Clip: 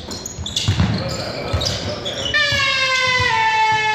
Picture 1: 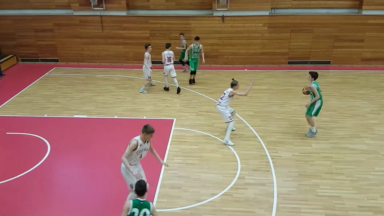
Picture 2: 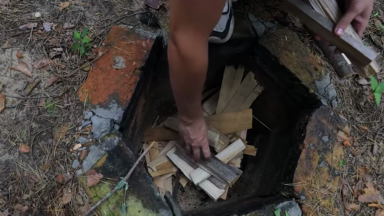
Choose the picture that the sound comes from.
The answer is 1